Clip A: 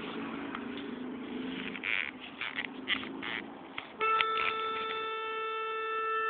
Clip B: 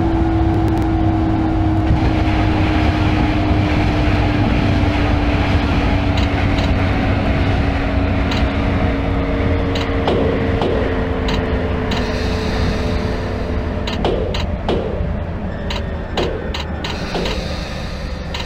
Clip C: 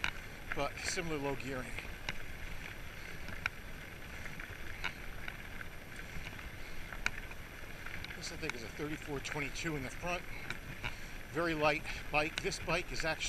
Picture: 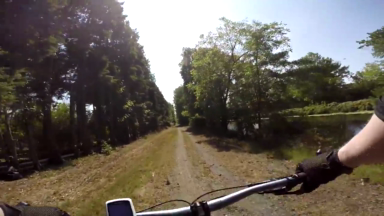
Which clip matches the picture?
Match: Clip C